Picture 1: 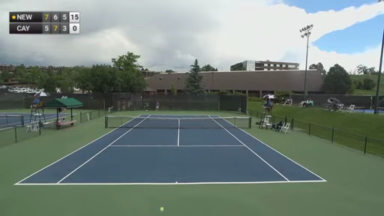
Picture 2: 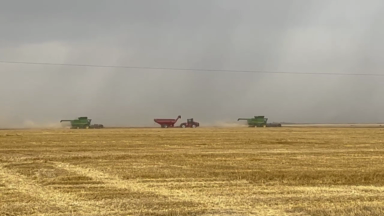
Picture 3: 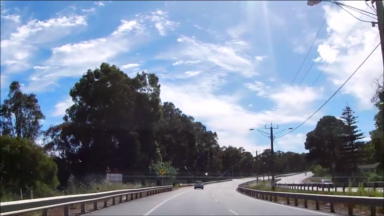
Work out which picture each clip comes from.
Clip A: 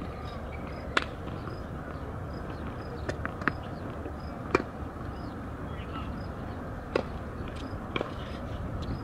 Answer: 1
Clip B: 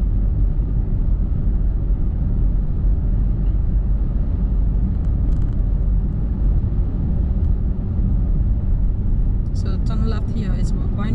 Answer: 3